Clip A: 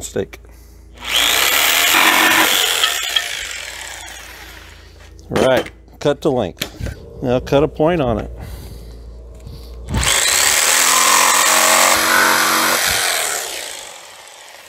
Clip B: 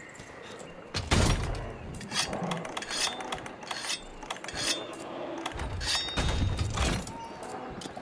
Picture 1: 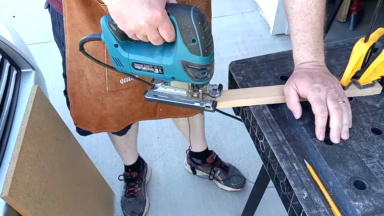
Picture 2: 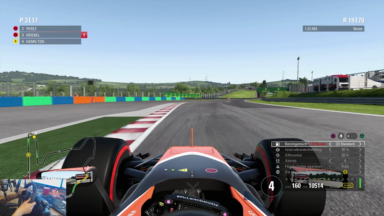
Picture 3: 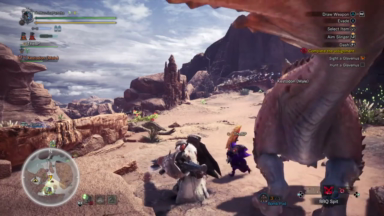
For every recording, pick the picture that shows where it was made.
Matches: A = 1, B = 3